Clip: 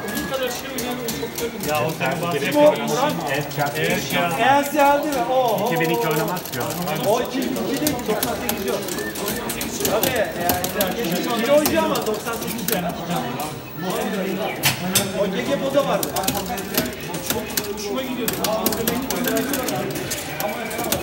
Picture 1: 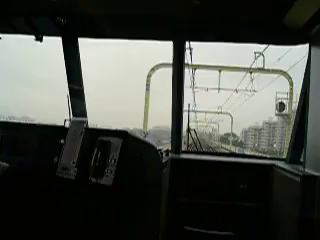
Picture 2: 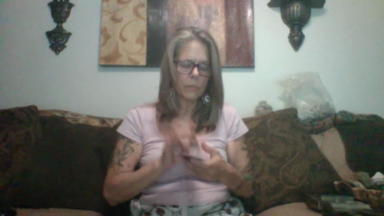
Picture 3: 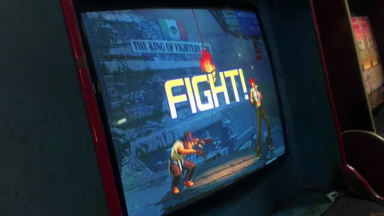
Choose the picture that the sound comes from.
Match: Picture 3